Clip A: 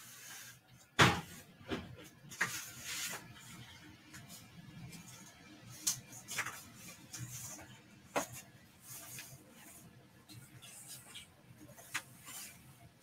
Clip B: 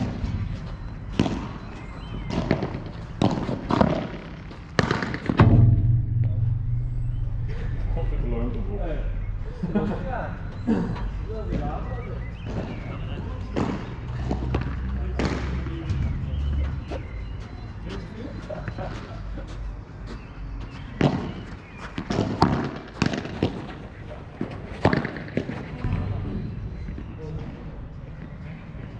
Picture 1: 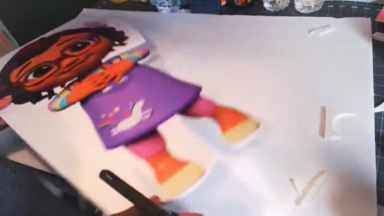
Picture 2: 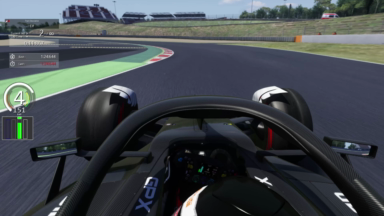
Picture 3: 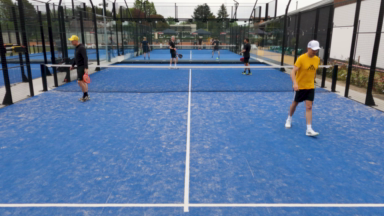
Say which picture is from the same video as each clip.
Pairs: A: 1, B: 3